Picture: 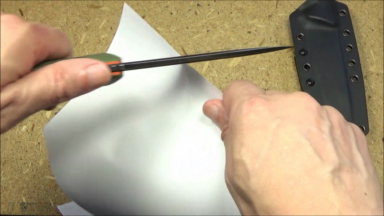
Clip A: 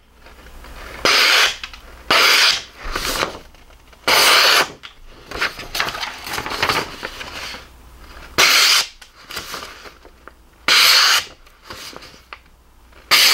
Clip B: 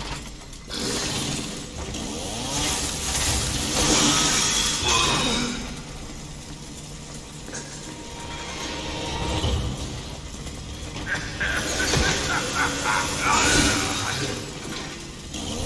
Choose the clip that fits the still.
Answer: A